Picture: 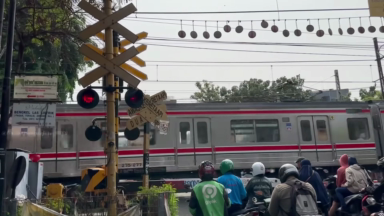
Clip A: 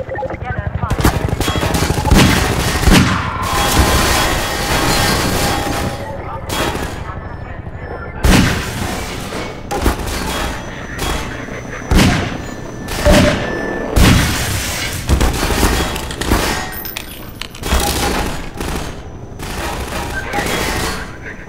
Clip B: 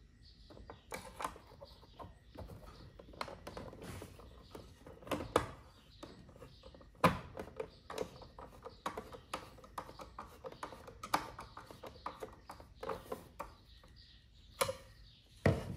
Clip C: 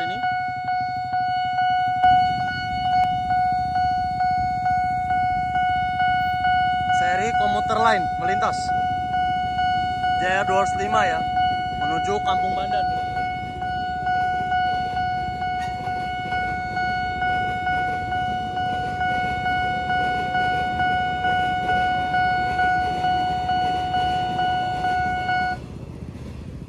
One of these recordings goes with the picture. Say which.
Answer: C